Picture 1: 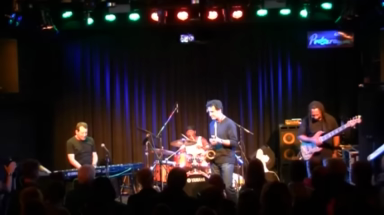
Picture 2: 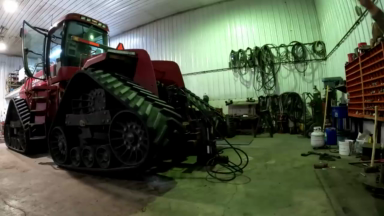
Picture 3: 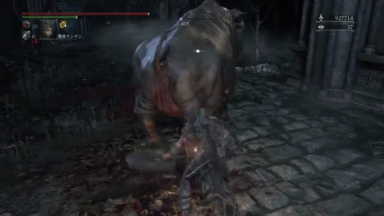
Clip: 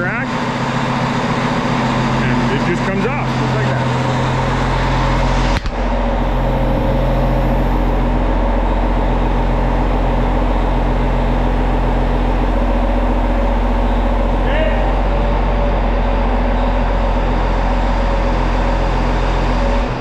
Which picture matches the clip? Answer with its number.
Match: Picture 2